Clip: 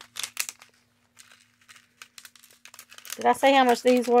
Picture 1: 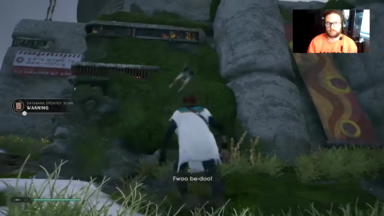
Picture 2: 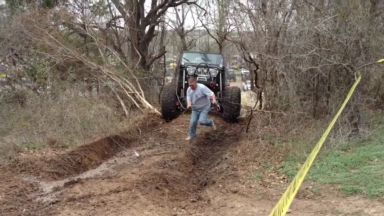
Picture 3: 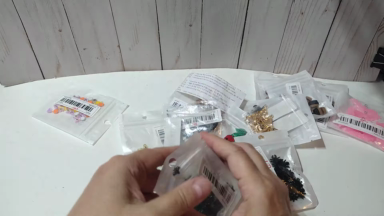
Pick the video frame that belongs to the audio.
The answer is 3